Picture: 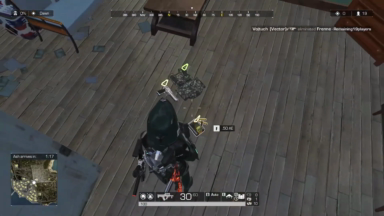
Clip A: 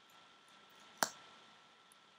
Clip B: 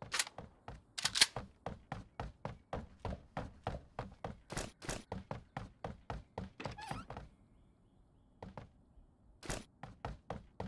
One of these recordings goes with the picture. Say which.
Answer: B